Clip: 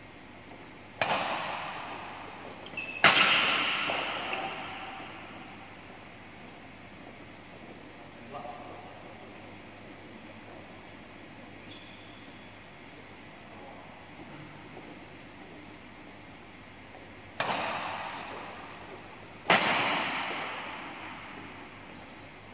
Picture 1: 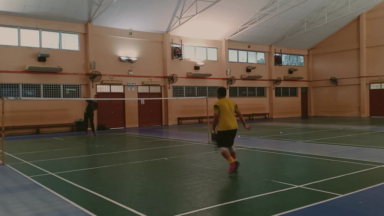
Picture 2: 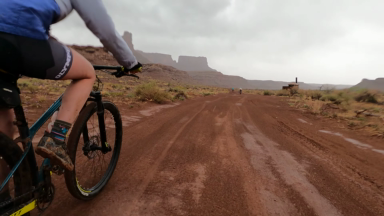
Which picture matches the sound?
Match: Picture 1